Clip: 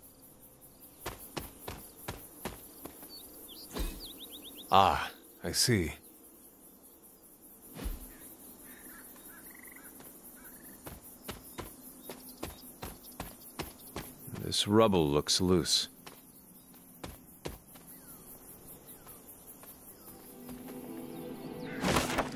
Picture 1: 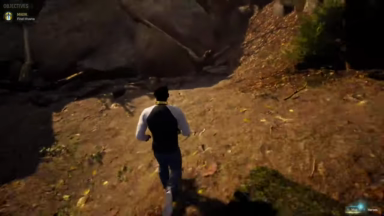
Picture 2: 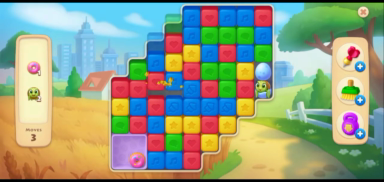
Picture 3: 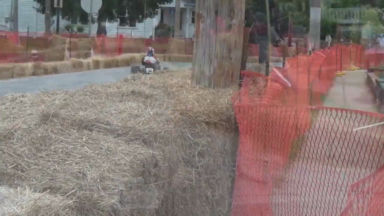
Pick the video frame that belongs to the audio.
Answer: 1